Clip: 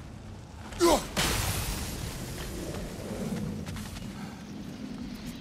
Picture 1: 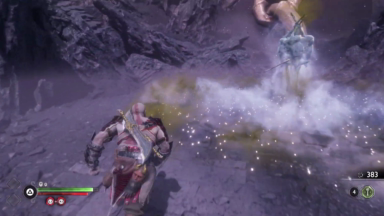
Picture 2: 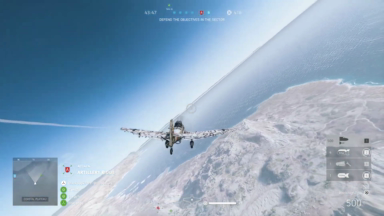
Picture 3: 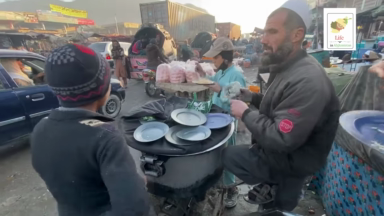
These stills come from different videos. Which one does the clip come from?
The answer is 1